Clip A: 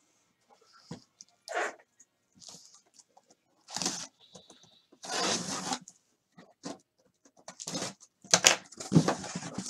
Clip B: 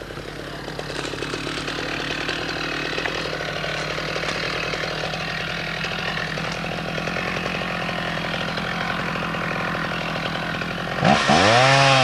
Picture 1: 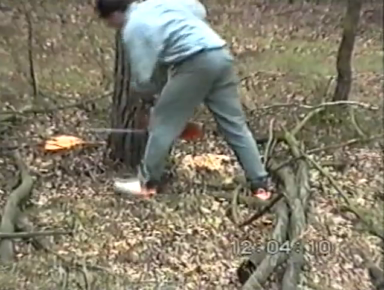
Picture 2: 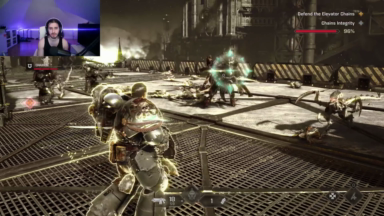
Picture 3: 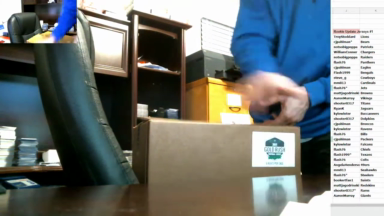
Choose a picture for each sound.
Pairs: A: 3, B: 1